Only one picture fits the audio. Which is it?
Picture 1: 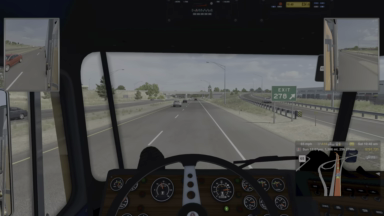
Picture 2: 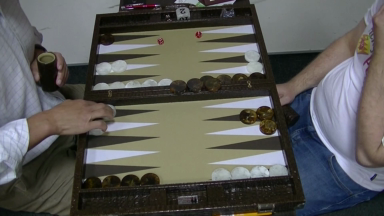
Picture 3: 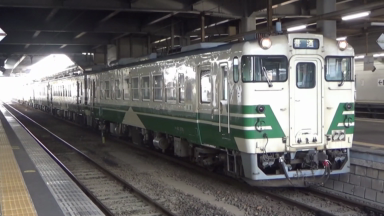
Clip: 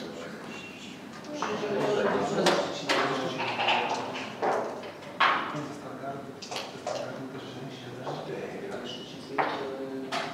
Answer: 2